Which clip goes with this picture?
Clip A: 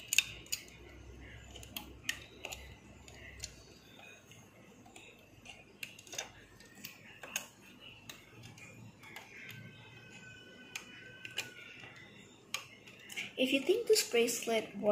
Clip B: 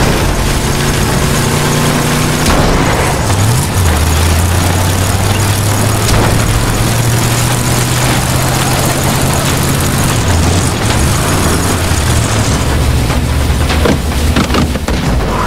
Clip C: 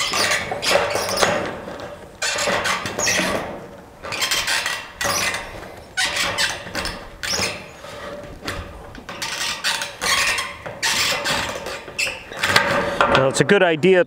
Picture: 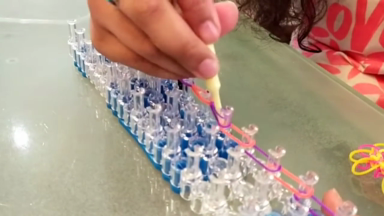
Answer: A